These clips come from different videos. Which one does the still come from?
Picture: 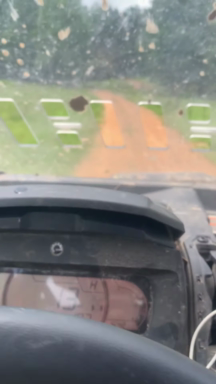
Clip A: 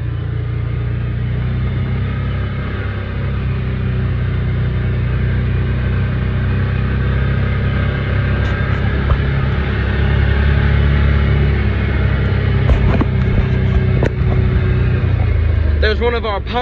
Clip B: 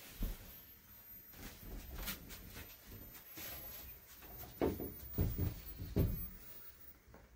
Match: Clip A